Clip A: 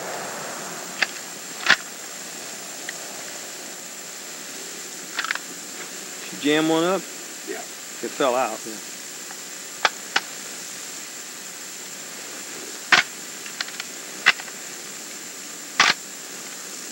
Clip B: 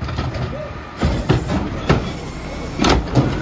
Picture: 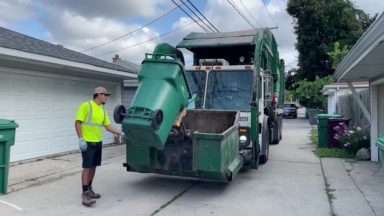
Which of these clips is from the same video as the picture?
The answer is B